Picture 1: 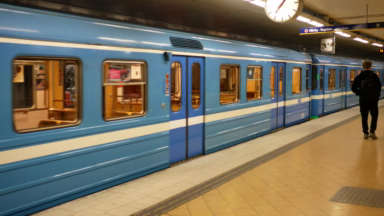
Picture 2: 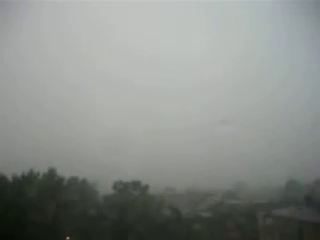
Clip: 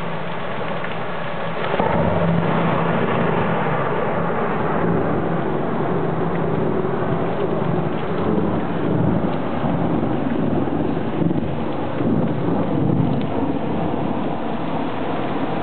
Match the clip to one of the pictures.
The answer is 2